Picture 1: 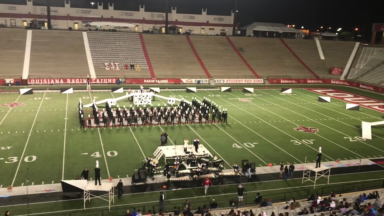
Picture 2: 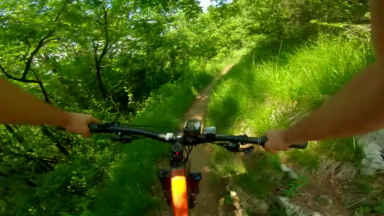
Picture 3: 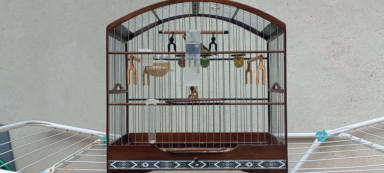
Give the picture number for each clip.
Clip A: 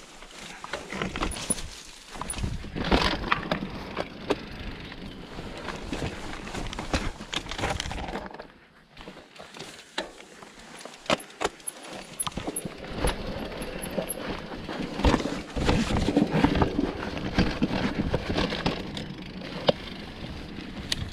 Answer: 2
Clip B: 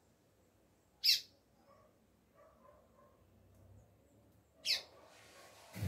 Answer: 3